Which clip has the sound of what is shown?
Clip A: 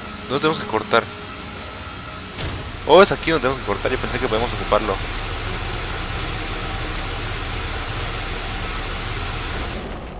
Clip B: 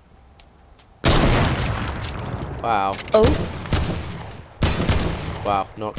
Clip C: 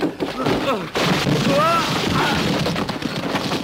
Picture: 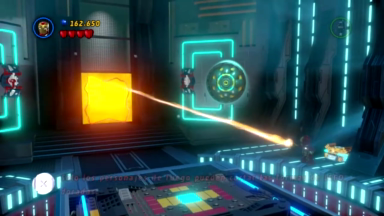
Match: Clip A